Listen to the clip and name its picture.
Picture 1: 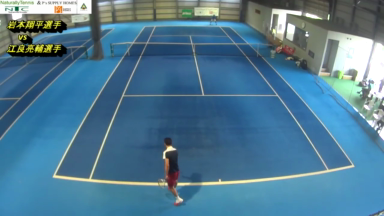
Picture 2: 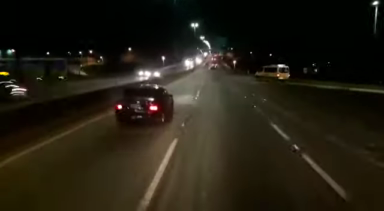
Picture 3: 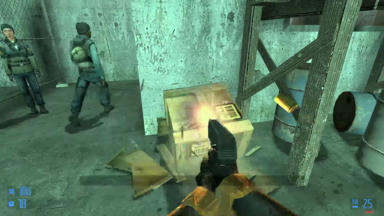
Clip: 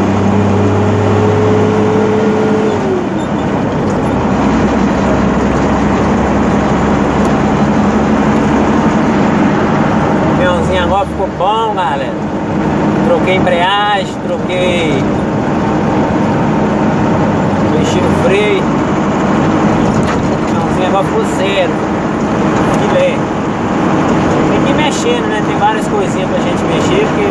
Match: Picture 2